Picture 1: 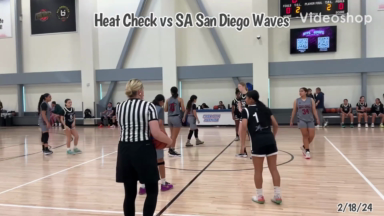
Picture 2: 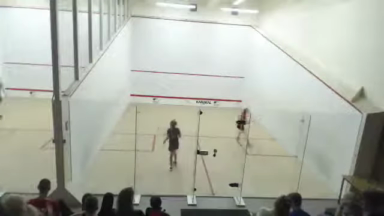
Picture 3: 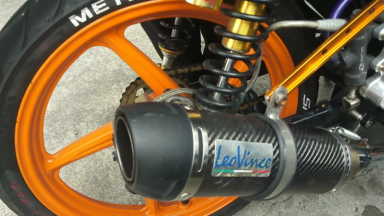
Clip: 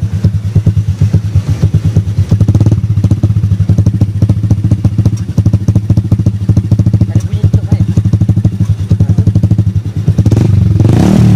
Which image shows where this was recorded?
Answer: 3